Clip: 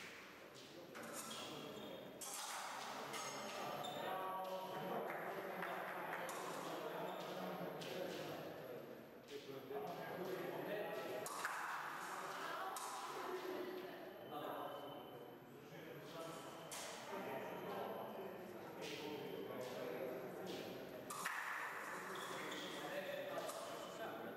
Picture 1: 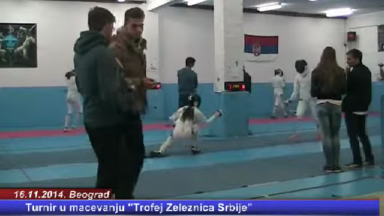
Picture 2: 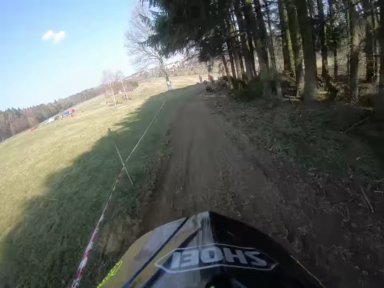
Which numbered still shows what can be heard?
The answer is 1